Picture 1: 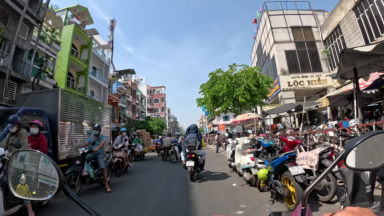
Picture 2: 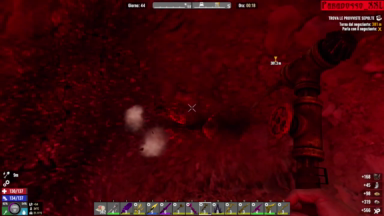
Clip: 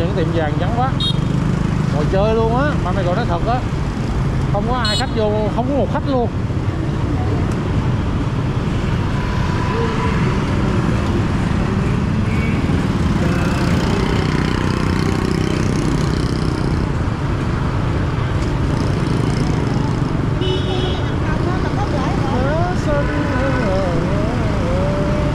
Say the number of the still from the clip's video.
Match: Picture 1